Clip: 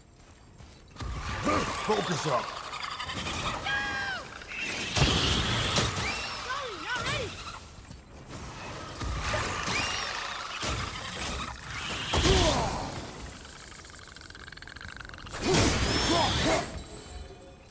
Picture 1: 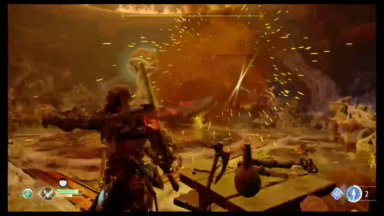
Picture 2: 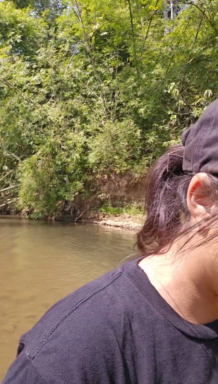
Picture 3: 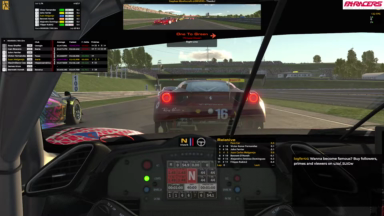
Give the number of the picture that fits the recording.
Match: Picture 1